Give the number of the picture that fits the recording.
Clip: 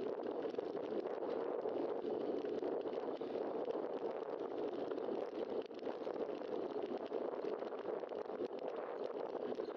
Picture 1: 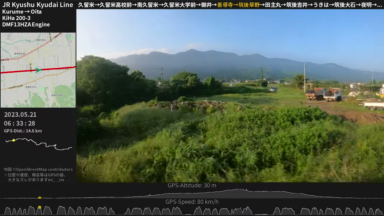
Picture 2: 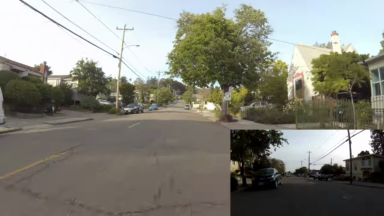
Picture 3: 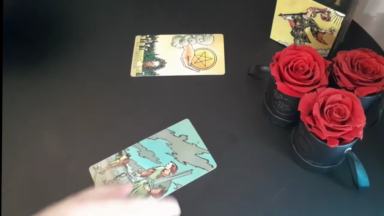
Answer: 2